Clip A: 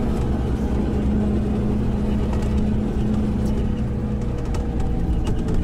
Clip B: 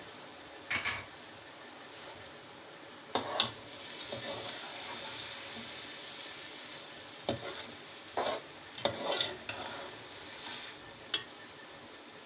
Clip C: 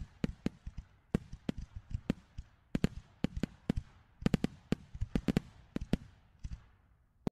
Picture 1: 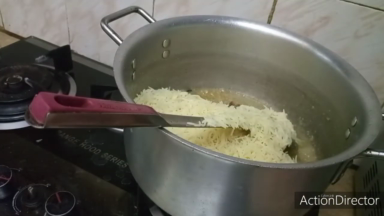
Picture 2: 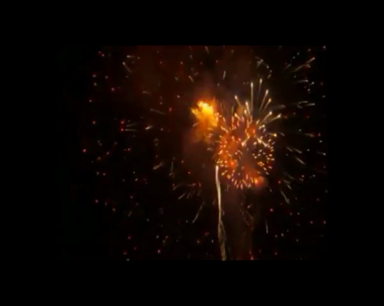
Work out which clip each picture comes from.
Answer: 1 B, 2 C